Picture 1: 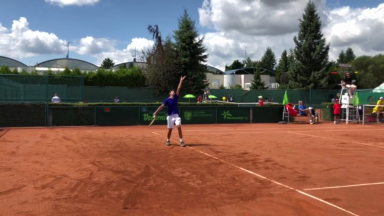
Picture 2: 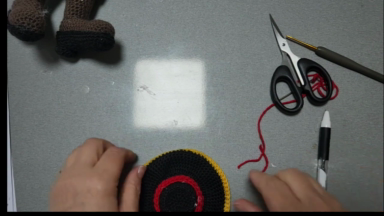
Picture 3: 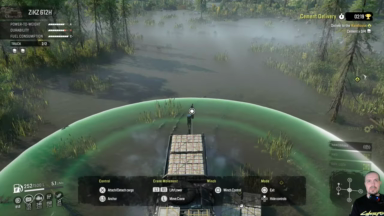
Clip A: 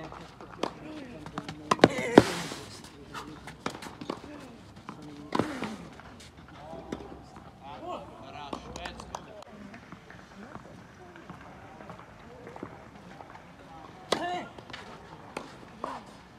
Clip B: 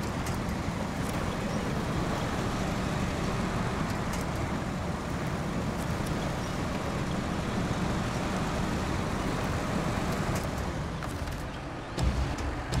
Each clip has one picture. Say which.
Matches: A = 1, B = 3